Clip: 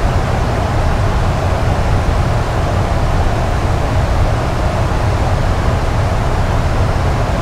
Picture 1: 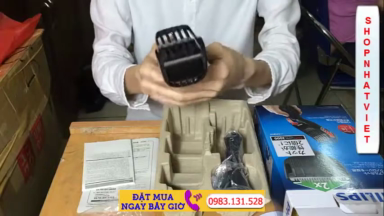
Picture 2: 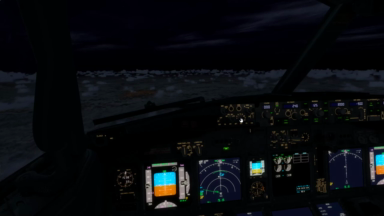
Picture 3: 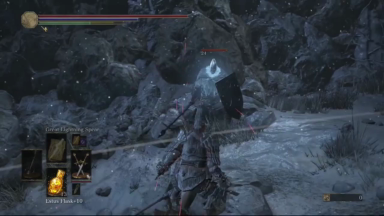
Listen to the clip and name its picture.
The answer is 2